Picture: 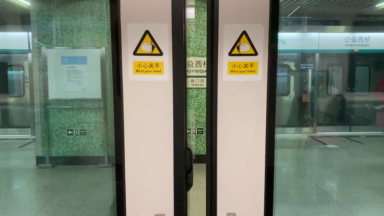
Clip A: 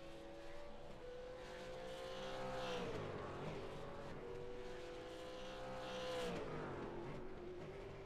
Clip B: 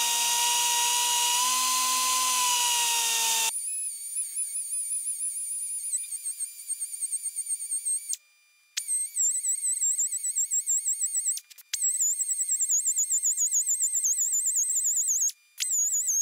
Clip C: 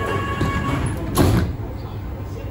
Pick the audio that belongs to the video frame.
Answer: C